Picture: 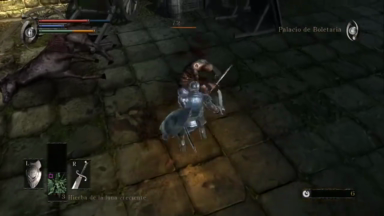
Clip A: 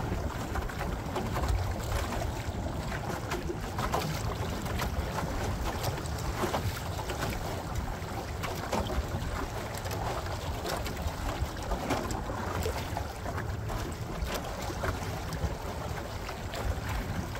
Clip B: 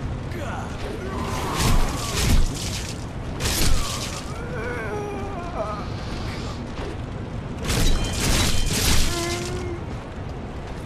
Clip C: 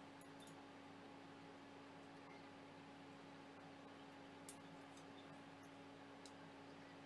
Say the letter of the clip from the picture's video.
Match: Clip B